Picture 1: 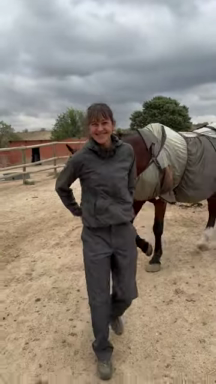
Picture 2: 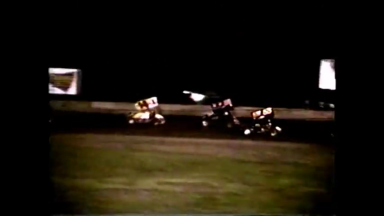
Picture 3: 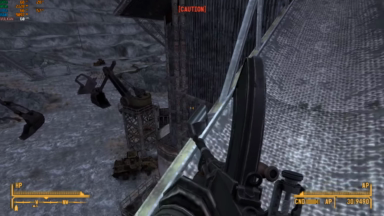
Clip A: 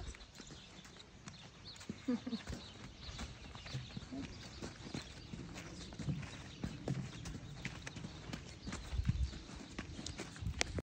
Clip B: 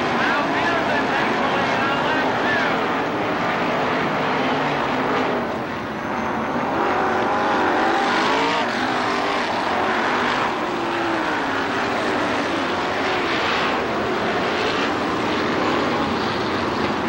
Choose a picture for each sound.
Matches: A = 1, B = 2